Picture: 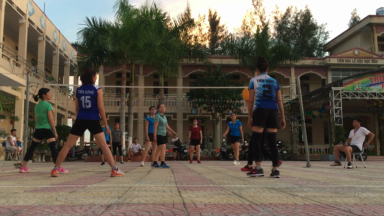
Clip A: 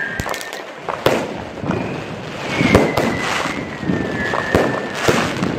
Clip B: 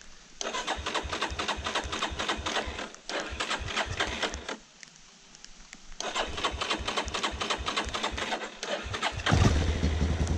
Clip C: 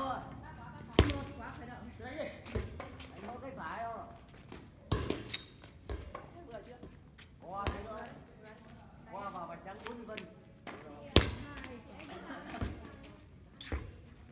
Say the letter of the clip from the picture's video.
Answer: C